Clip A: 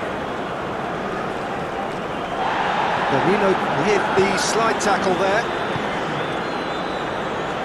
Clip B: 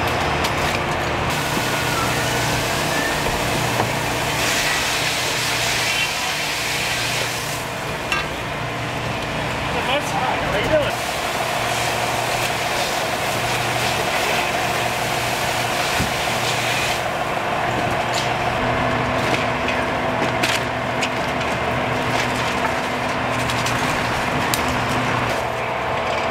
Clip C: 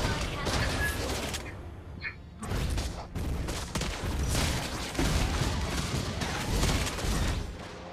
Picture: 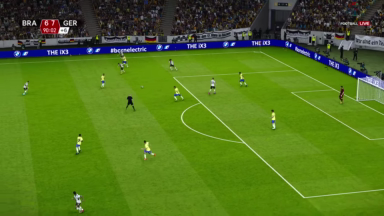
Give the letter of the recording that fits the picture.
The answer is A